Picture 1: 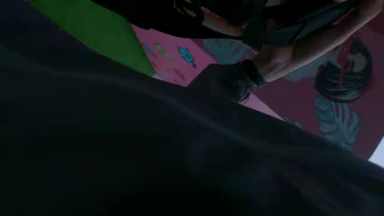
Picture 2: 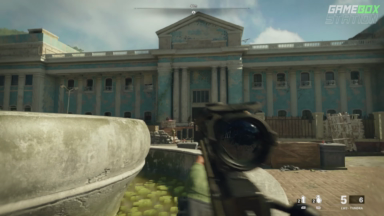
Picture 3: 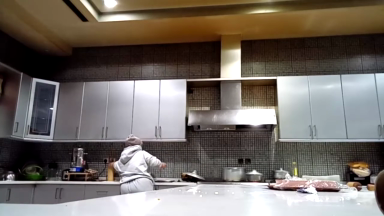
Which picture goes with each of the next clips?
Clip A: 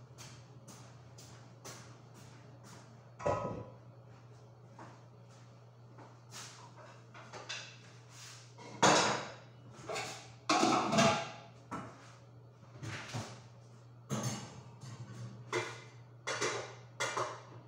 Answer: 3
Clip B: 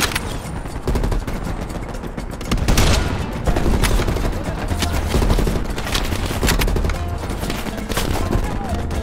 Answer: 2